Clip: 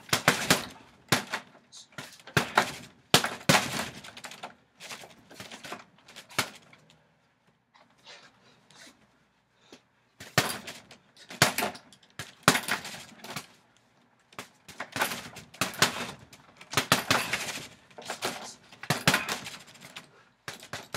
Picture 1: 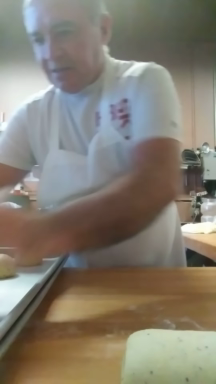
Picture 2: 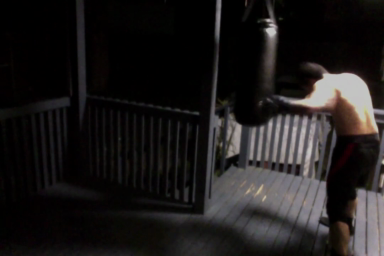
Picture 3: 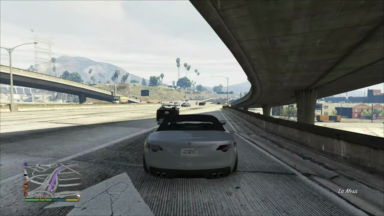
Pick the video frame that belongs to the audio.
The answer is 2